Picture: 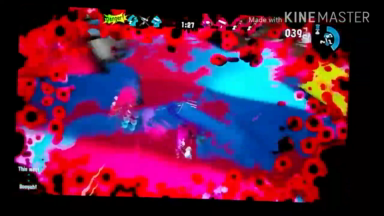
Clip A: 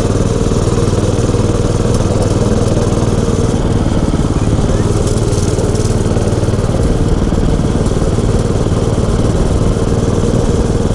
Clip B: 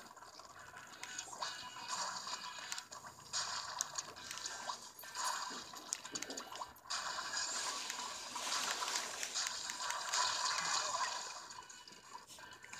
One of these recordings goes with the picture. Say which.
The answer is B